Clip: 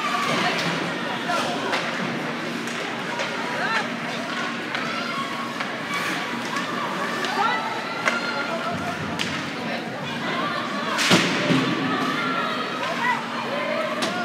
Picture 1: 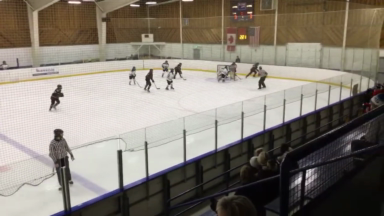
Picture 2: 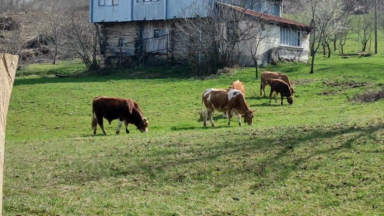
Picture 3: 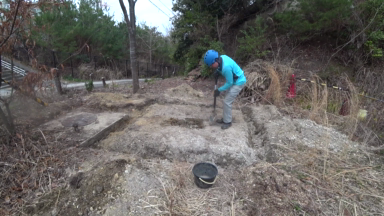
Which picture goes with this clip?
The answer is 1